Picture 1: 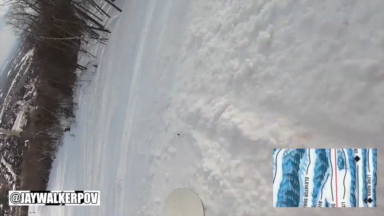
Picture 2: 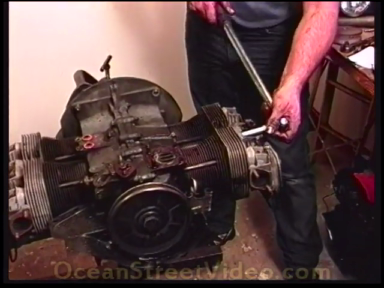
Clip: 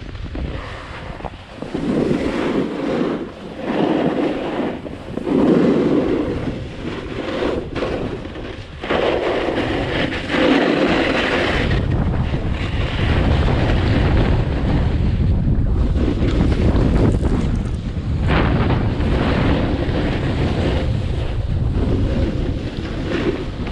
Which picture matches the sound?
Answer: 1